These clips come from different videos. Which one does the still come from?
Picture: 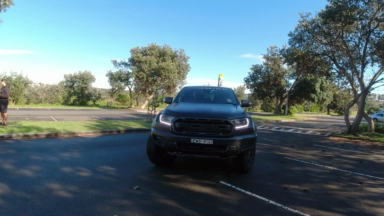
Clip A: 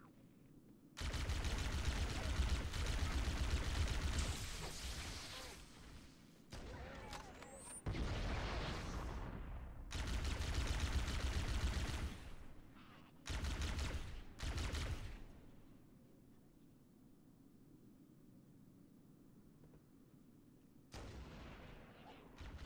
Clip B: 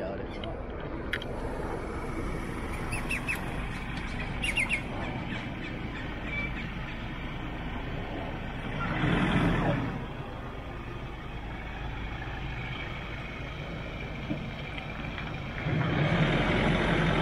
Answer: B